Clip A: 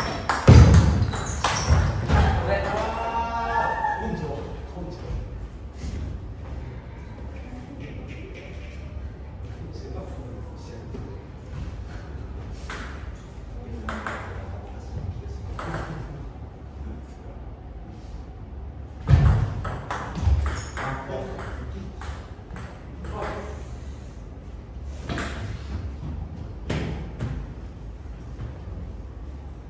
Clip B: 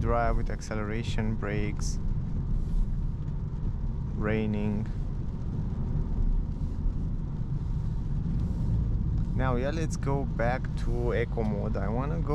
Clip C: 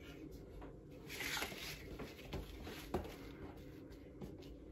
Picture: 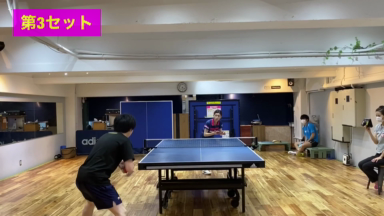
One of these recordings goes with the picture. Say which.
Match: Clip A